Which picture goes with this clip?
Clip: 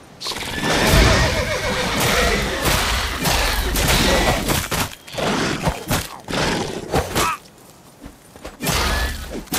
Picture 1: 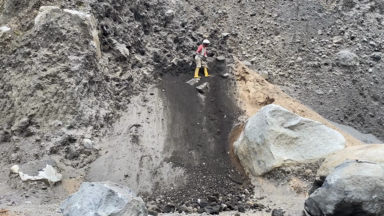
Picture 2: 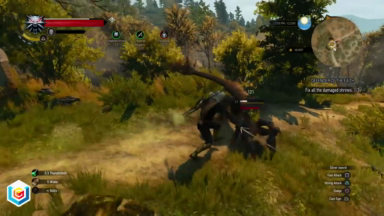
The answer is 2